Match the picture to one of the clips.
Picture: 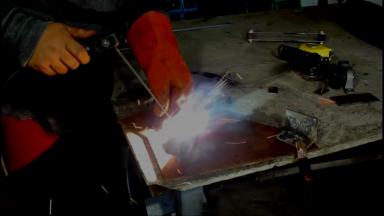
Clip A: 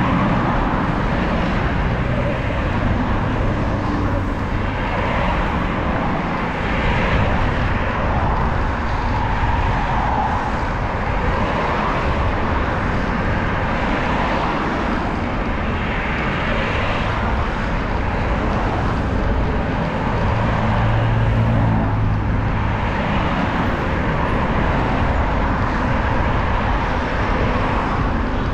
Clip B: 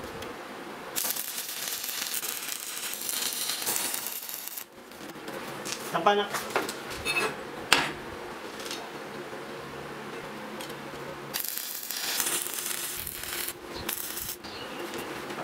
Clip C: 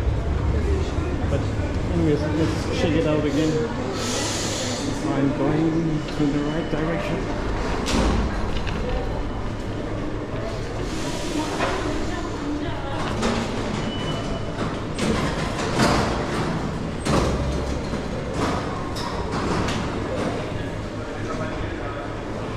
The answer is B